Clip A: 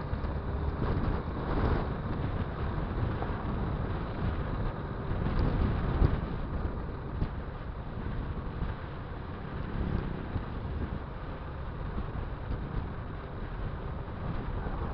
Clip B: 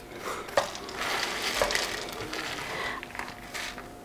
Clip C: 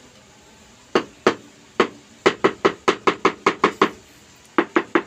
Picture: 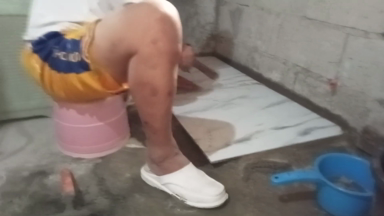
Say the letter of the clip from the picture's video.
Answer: C